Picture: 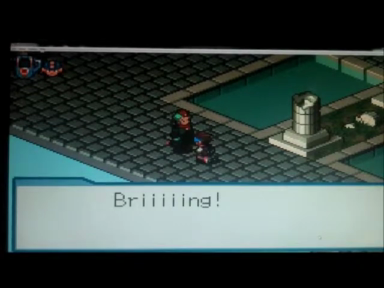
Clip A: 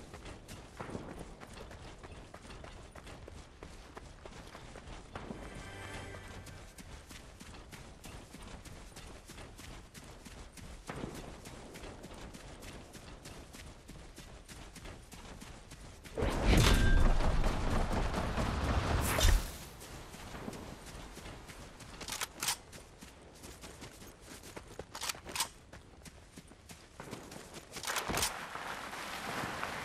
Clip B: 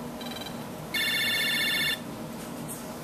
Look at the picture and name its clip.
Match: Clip B